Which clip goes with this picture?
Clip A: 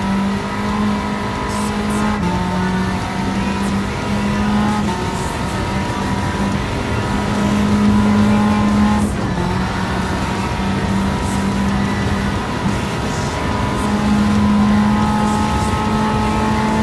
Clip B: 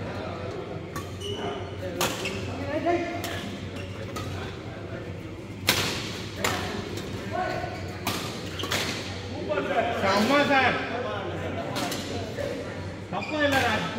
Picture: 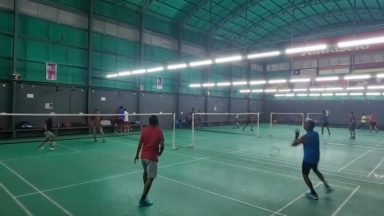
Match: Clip B